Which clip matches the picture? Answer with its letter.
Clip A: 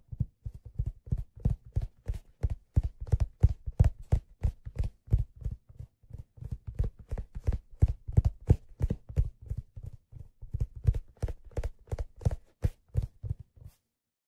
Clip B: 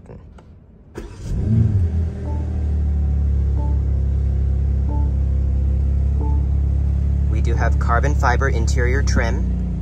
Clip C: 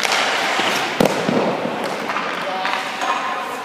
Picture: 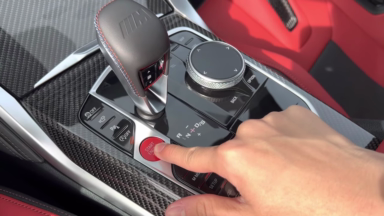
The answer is B